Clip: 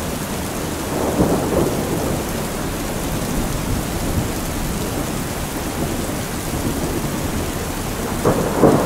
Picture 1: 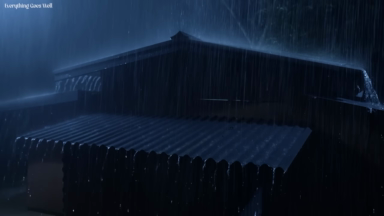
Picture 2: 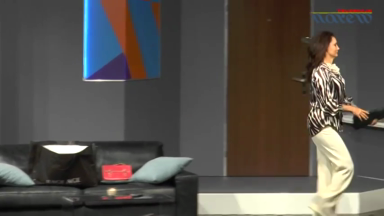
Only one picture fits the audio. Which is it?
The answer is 1